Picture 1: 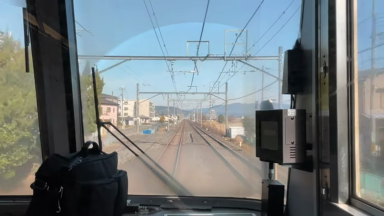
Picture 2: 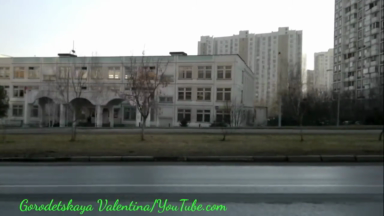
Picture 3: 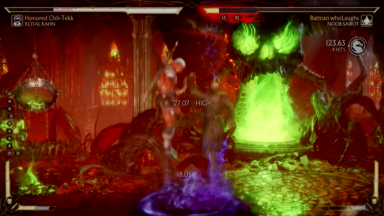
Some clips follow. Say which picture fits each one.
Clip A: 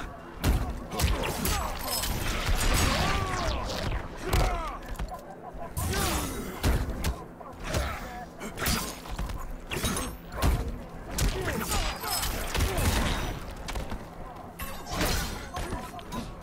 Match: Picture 3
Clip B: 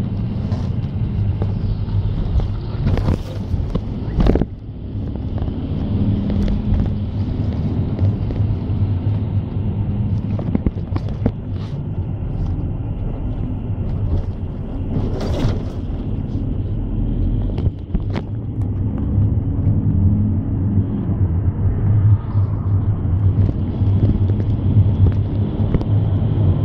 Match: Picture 2